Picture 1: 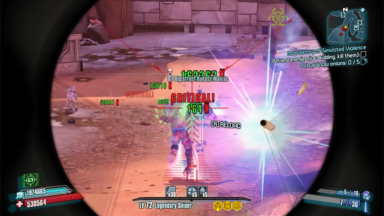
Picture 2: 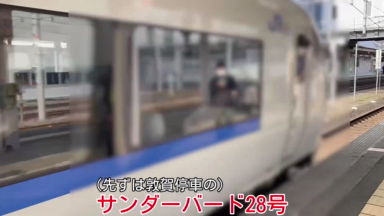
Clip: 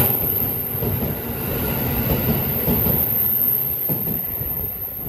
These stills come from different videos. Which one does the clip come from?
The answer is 2